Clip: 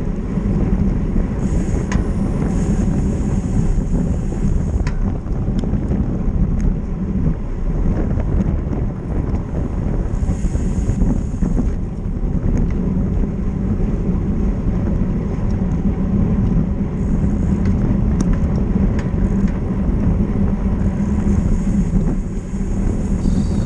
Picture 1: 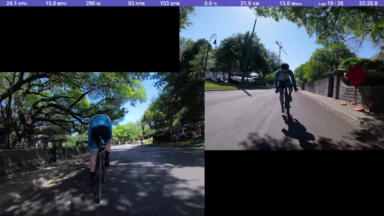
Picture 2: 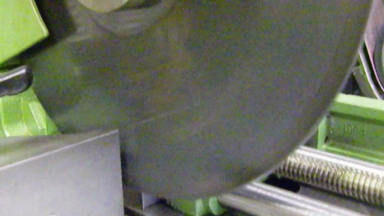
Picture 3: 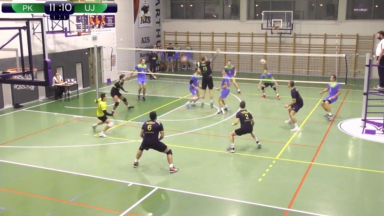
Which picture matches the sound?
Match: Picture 1